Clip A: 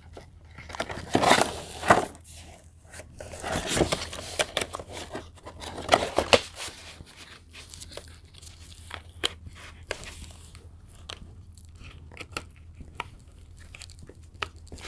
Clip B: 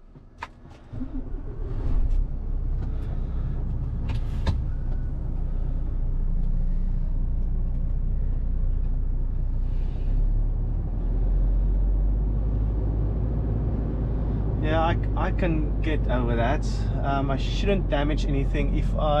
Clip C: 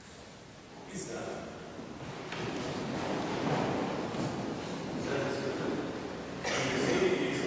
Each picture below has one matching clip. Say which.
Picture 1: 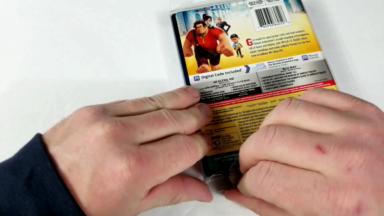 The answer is A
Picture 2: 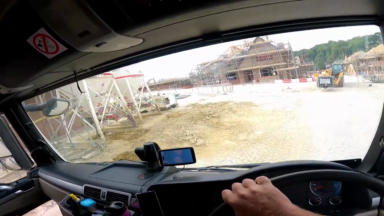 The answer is B